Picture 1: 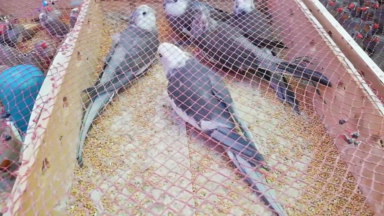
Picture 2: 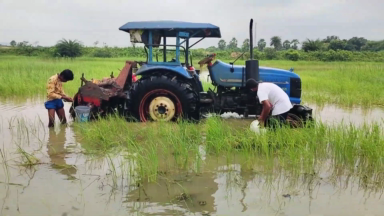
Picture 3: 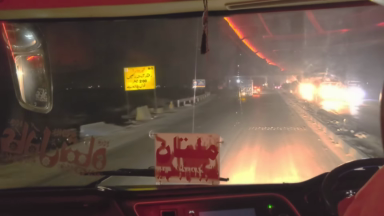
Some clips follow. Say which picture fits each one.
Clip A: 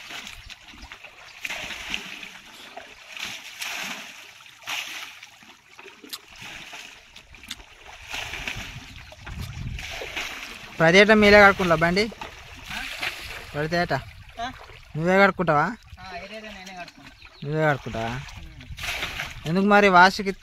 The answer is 2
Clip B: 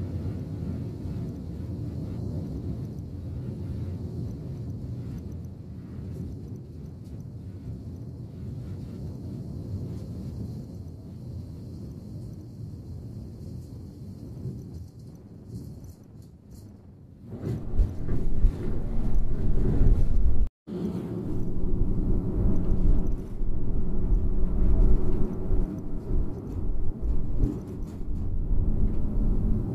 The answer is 3